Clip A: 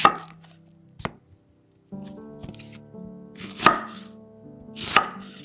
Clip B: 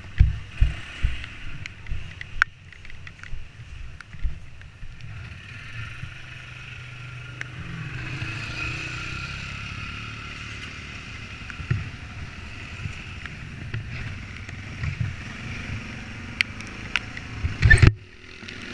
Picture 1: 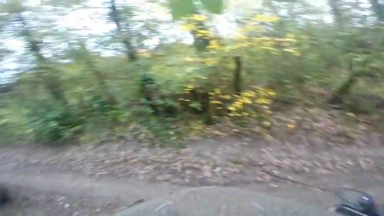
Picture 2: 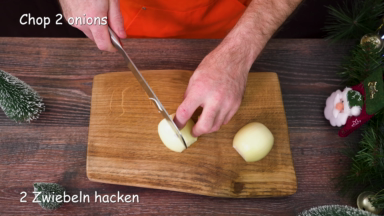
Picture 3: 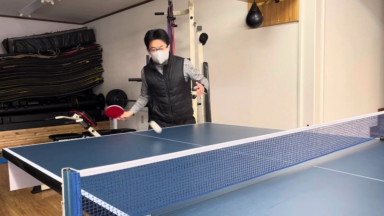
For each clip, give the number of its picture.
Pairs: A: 2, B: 1